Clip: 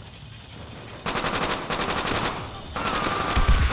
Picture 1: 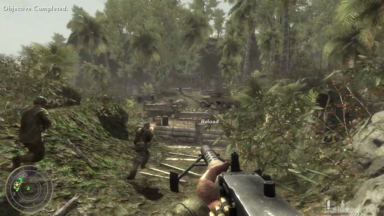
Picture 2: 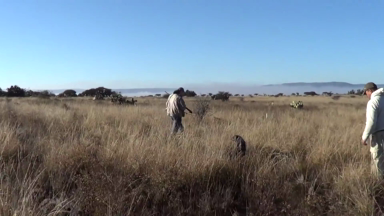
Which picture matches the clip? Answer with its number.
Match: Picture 1